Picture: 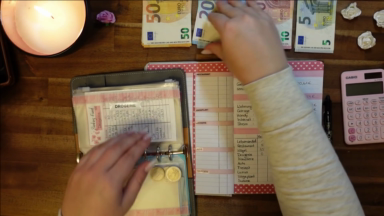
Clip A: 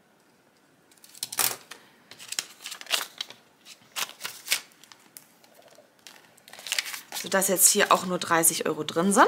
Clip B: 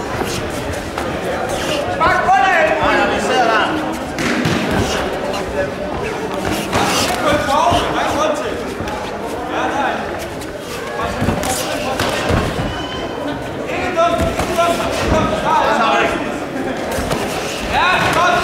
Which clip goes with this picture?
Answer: A